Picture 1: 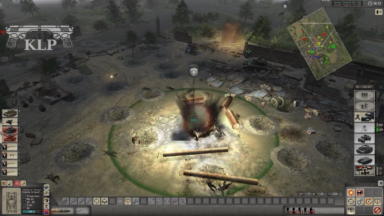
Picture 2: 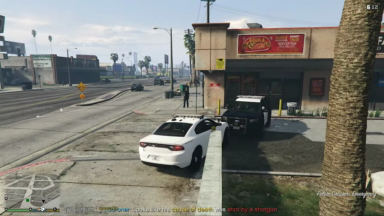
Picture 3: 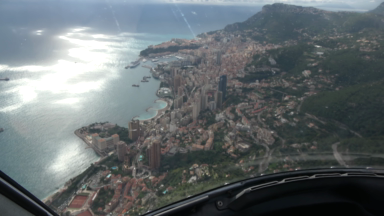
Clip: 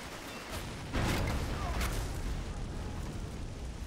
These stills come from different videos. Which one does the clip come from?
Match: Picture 1